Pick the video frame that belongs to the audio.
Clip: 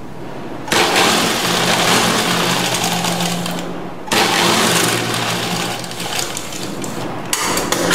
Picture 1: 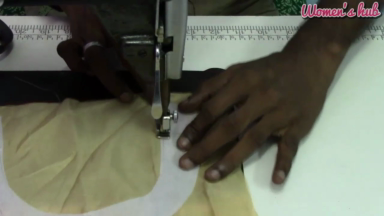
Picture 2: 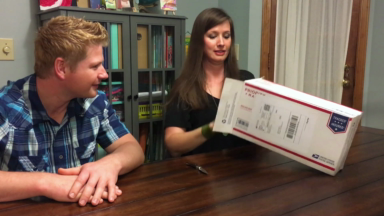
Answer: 1